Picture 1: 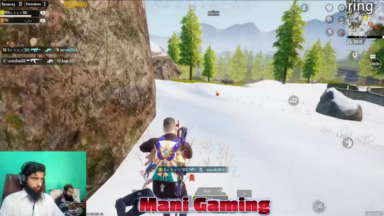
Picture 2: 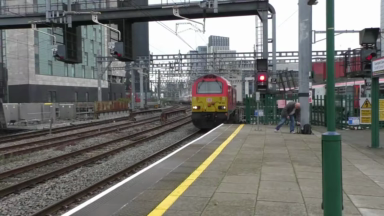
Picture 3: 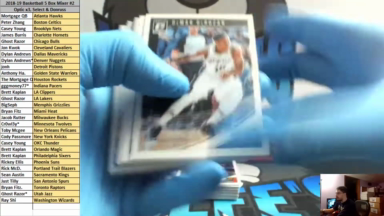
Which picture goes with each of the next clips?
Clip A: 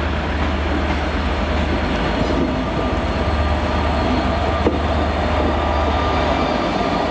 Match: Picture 2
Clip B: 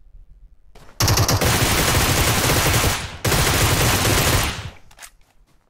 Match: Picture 1